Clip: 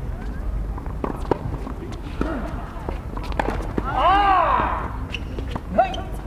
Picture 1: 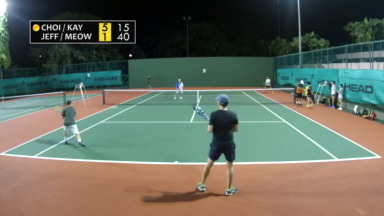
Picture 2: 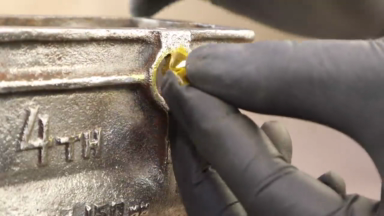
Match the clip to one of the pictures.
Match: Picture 1